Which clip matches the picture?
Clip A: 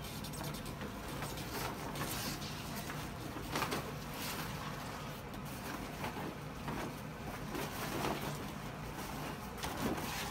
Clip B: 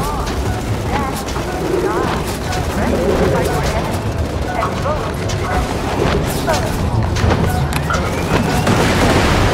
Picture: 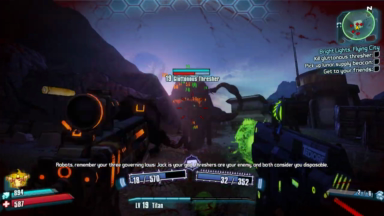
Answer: B